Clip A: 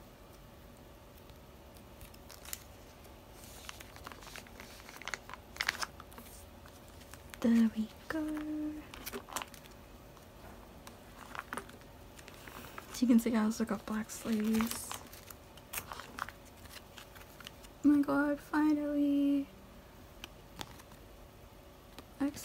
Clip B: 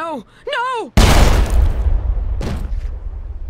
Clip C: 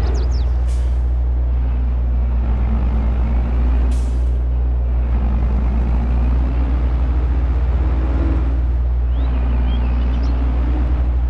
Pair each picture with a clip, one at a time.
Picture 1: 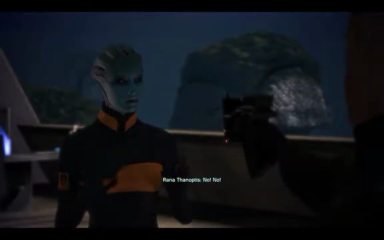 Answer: B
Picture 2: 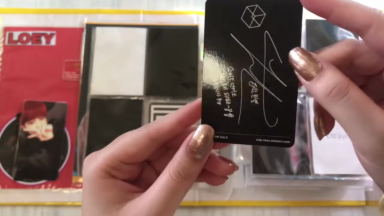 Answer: A